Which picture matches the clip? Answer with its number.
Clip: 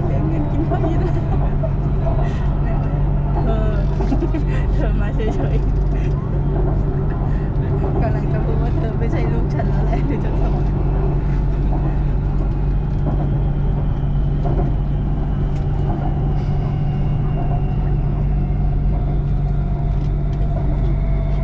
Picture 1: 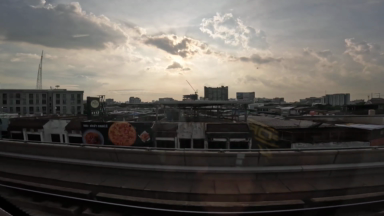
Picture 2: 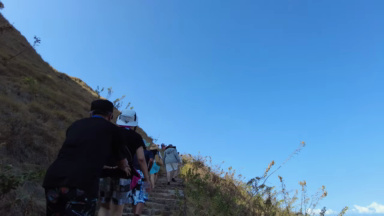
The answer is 1